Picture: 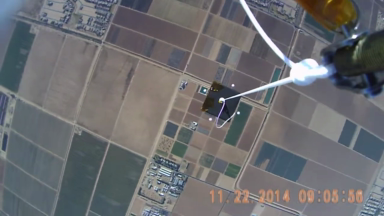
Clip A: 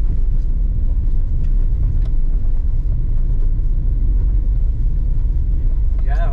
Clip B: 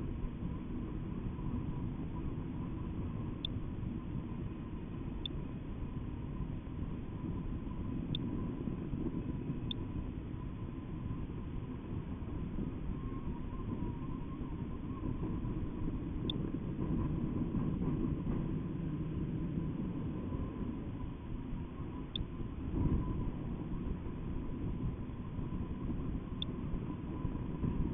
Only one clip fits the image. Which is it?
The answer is B